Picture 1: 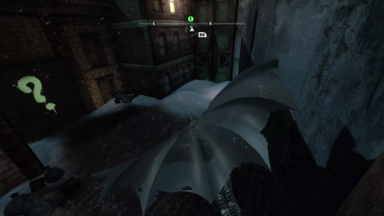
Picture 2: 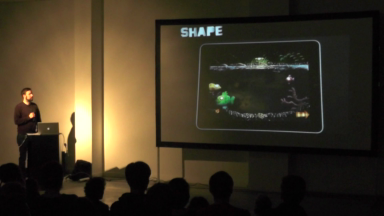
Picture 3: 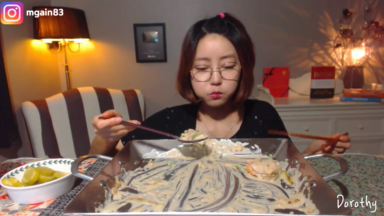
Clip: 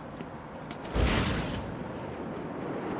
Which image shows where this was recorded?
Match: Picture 1